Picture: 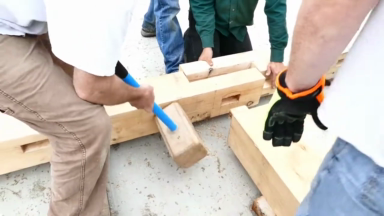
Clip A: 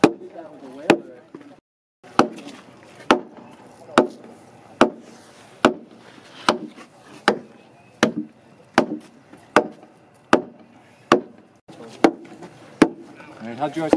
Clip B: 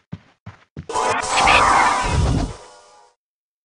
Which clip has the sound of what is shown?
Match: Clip A